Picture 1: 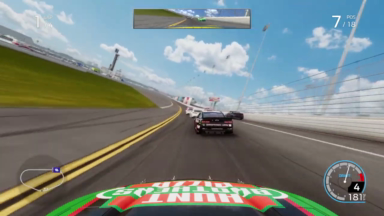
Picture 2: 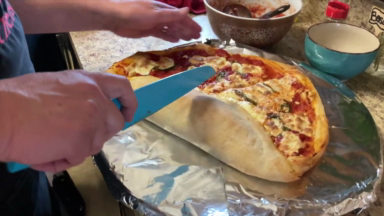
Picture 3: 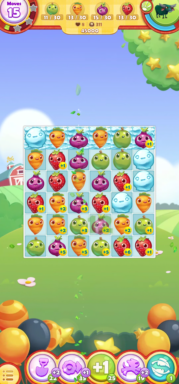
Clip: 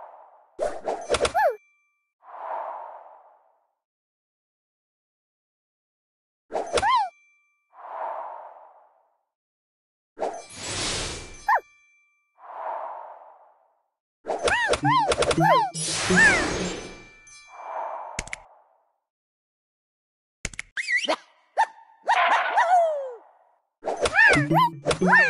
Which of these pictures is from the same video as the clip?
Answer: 3